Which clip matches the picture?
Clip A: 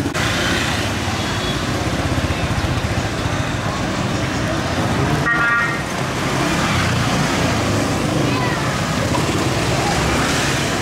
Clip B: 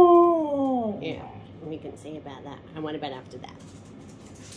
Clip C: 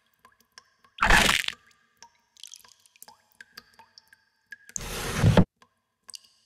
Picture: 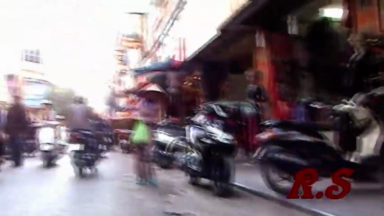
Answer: A